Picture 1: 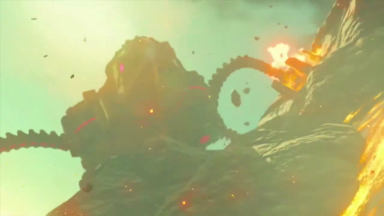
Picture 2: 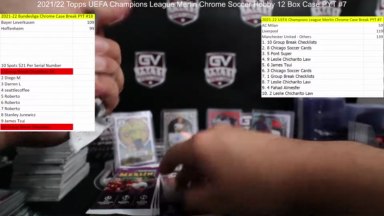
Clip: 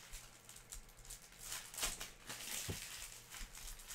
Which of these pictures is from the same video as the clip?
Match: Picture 2